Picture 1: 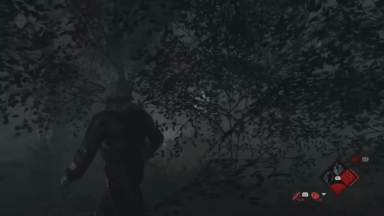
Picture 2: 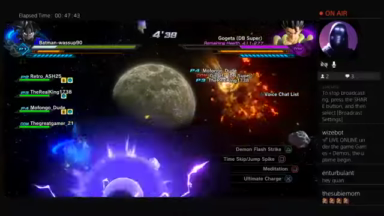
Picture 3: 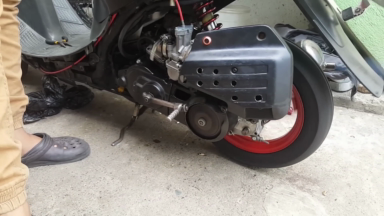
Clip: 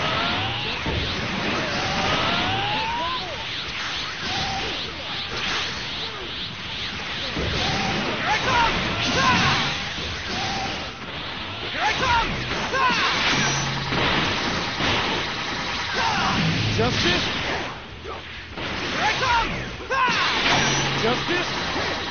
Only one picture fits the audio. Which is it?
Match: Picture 2